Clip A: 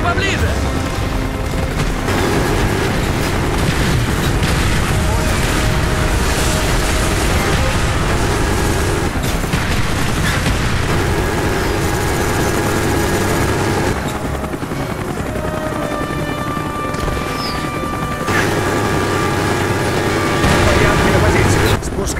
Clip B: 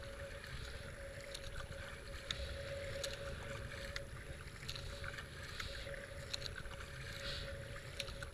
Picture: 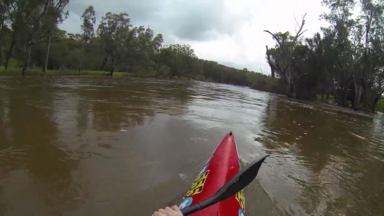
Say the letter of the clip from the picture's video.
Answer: B